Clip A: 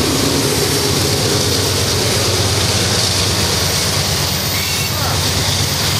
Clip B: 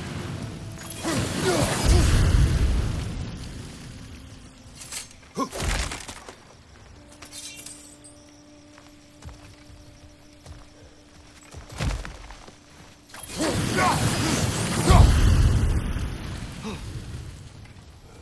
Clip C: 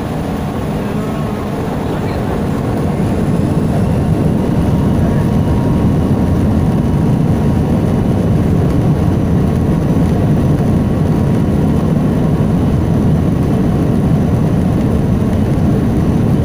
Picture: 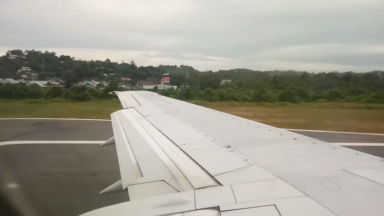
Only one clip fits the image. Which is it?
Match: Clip C